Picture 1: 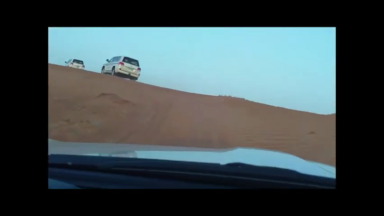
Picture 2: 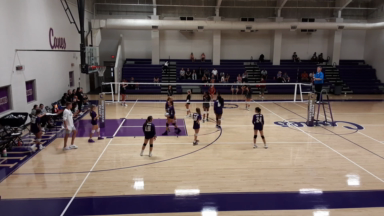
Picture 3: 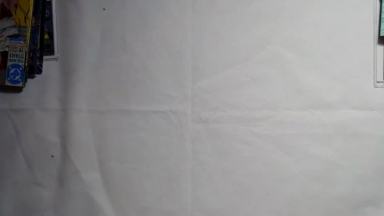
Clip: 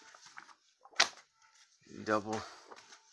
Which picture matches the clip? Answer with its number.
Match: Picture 3